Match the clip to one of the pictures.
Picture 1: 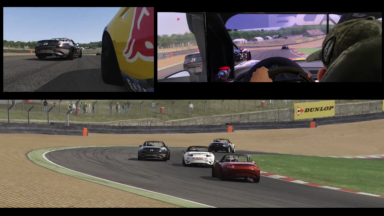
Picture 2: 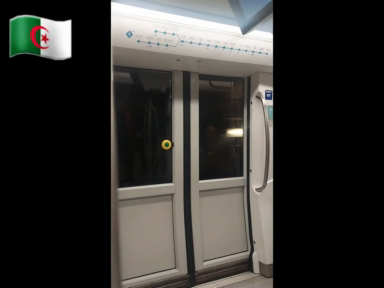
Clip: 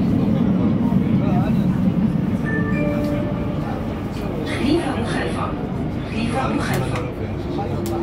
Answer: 2